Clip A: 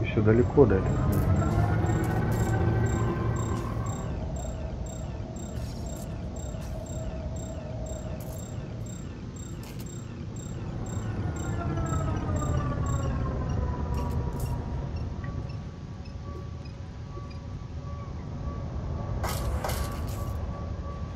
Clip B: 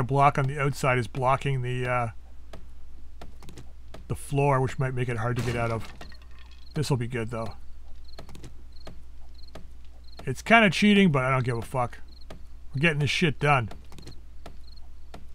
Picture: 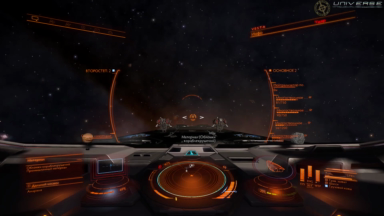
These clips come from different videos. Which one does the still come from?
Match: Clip A